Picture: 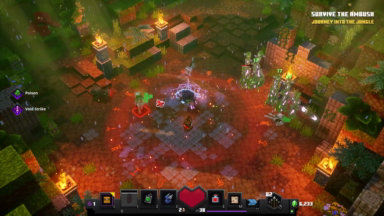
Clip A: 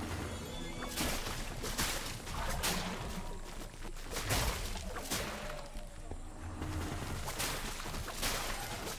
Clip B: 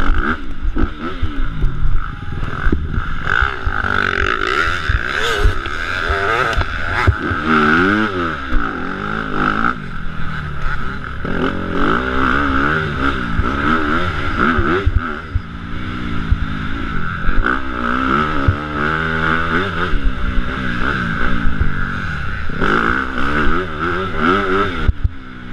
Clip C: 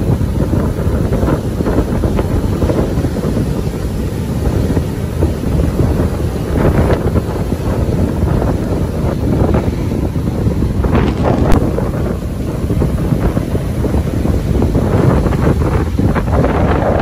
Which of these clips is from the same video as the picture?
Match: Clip A